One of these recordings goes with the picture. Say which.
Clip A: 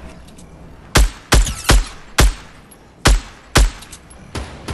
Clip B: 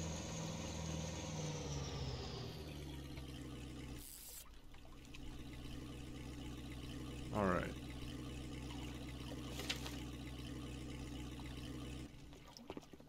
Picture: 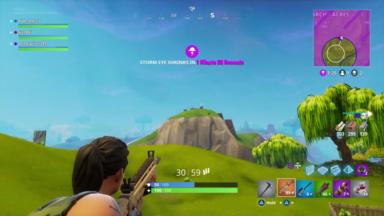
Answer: A